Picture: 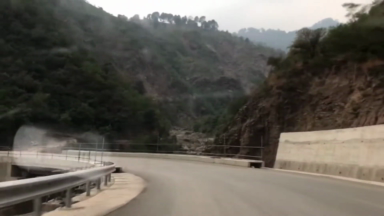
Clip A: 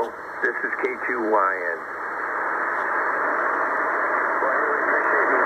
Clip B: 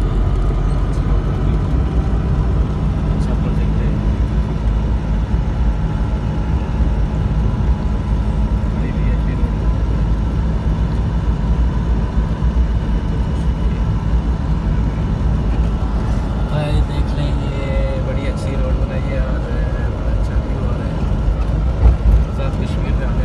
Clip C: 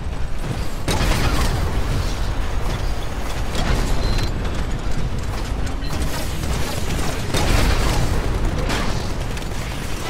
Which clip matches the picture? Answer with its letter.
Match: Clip B